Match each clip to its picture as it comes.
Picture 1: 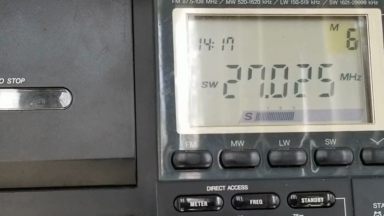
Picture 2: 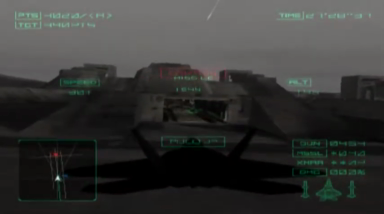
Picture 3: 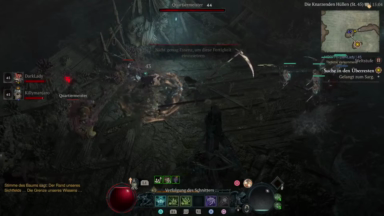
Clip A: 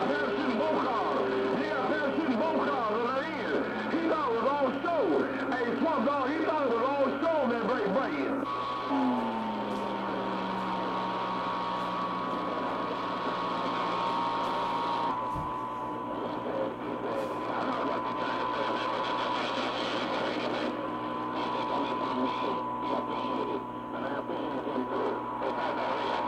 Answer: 1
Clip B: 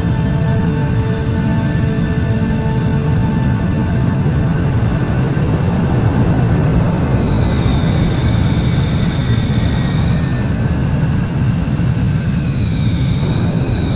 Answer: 2